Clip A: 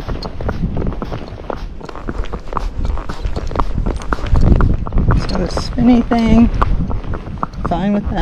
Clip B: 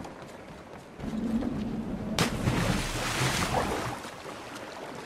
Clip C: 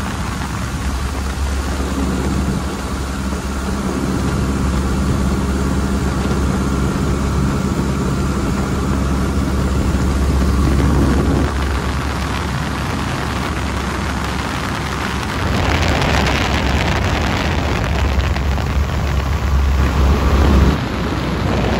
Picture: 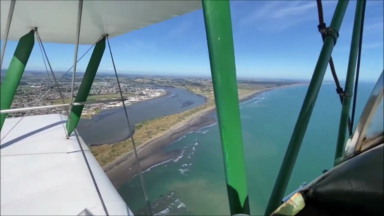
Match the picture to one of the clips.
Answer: C